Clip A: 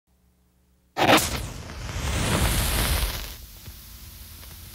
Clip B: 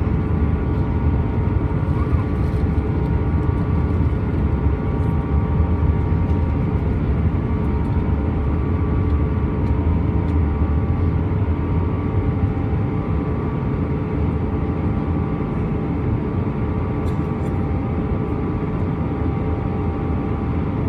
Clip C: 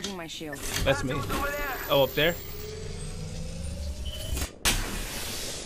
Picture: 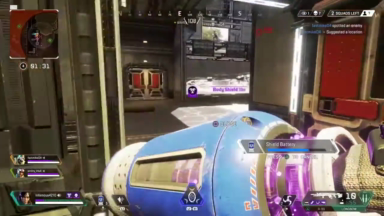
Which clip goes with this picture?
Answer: C